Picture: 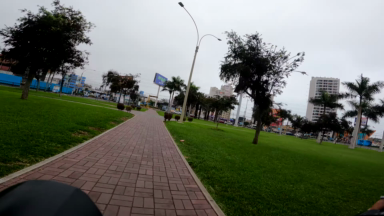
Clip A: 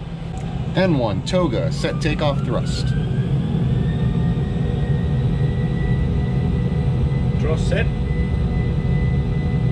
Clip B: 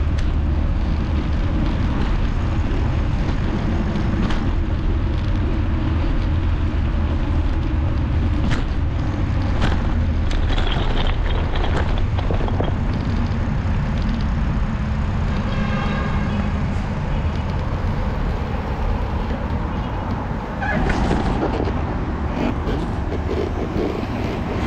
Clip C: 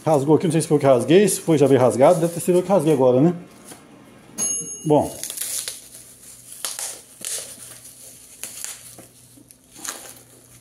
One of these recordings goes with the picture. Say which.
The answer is B